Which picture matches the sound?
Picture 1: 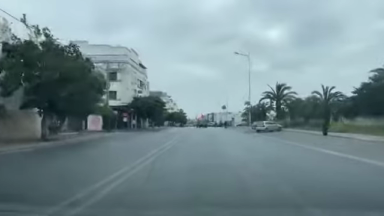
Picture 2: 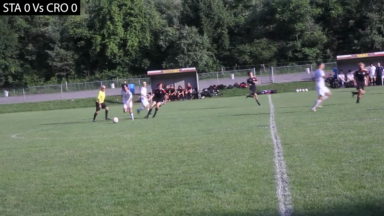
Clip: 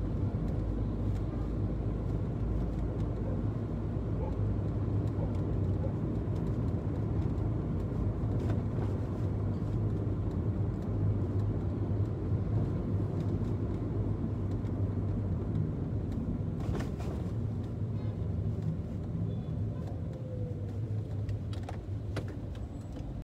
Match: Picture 1